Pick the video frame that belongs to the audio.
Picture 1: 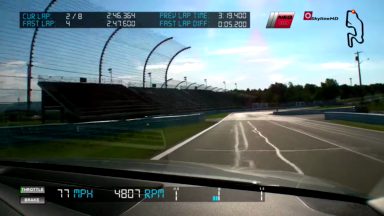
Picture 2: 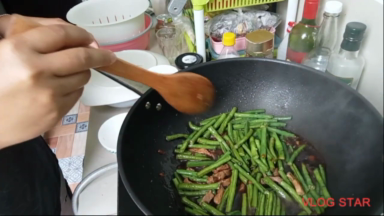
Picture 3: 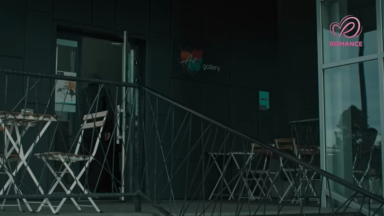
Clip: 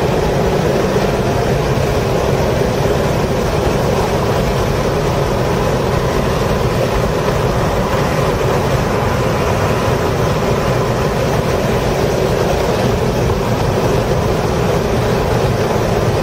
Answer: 1